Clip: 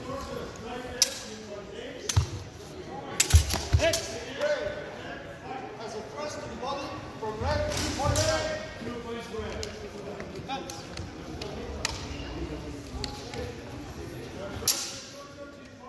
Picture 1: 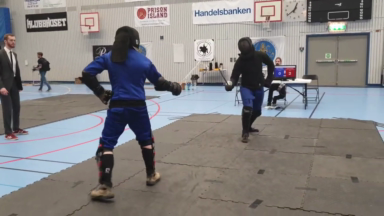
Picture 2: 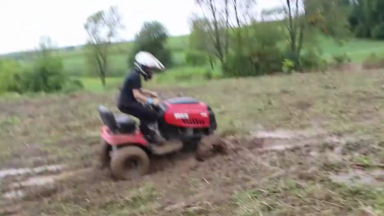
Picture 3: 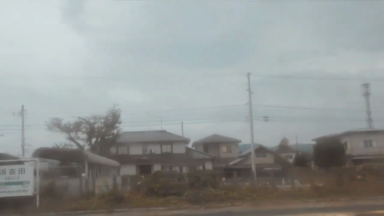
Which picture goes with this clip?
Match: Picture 1